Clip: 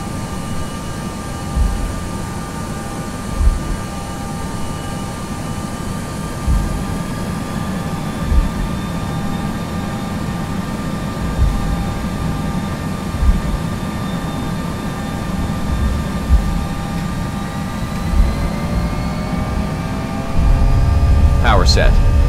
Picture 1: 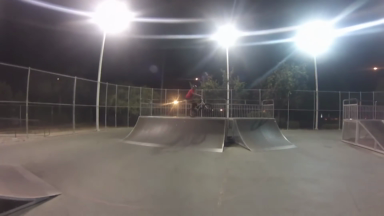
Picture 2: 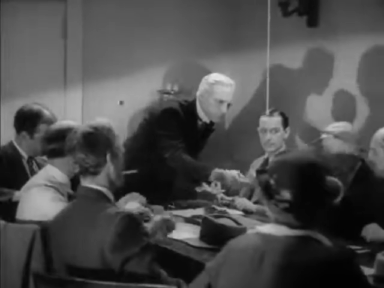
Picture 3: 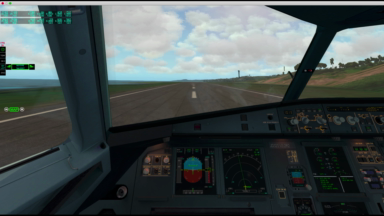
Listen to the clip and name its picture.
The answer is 3